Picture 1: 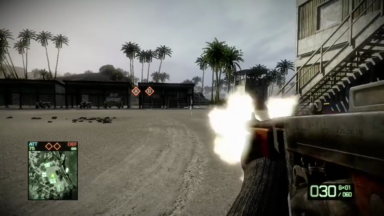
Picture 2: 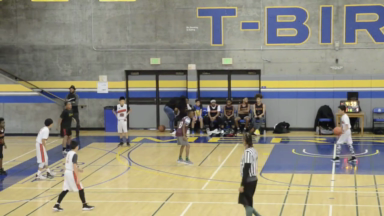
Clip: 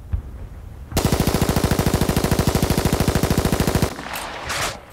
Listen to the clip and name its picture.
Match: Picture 1